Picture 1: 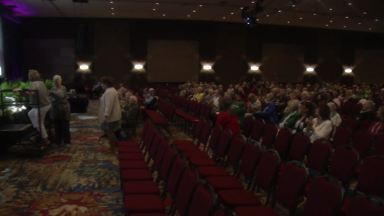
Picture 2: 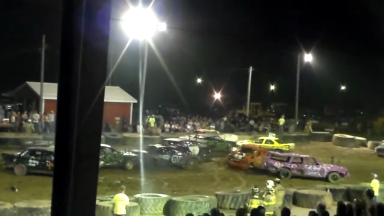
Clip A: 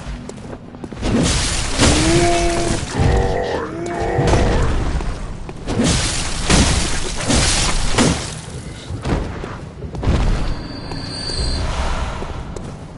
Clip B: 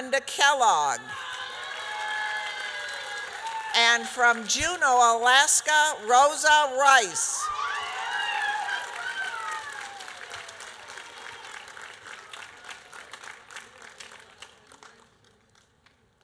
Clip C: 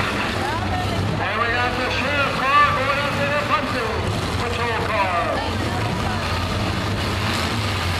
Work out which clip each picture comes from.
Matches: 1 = B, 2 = C